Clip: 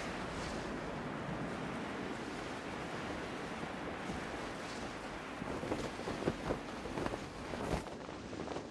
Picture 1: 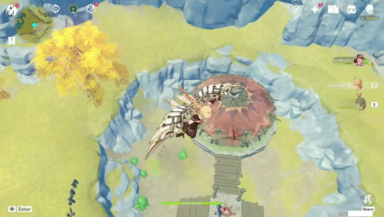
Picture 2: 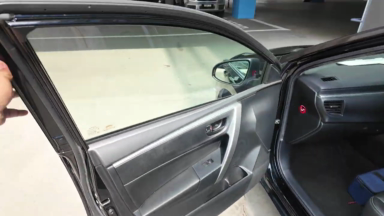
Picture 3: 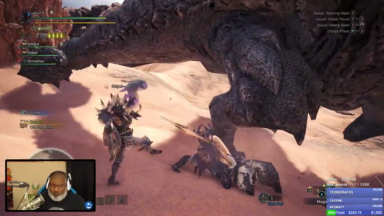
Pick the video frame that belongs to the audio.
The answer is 1